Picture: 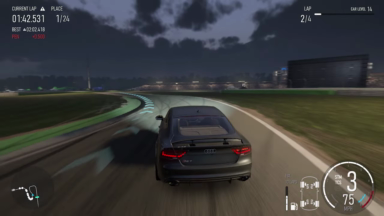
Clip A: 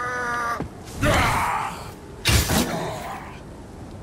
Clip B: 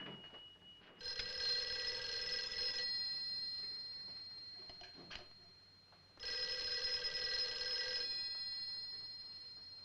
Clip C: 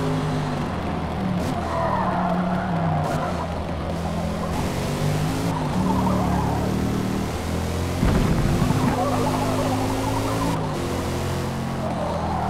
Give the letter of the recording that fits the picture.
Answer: C